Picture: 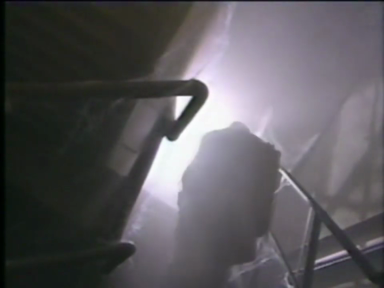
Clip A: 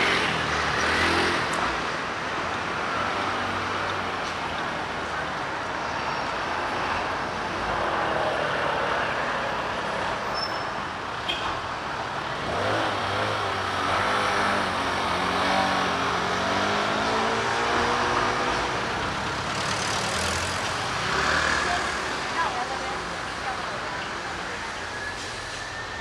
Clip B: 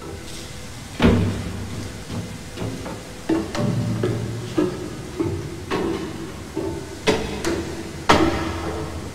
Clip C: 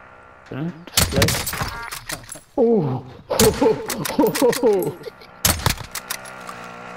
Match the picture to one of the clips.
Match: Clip B